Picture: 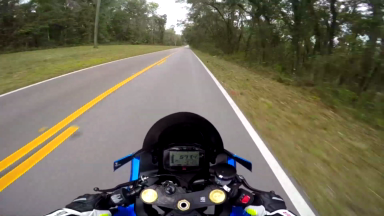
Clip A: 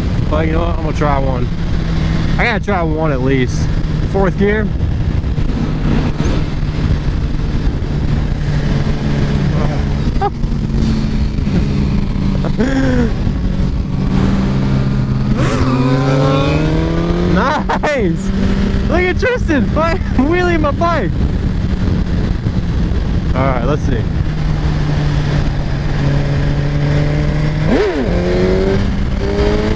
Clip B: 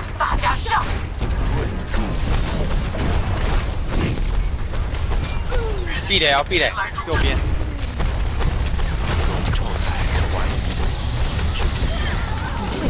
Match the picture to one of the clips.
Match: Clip A